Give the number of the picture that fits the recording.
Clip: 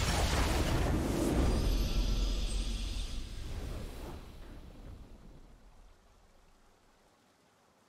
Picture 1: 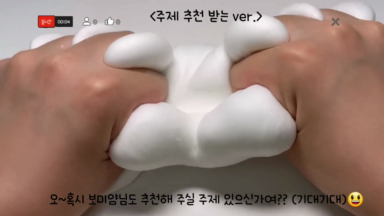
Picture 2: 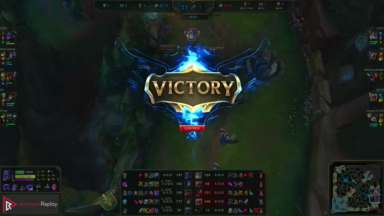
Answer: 2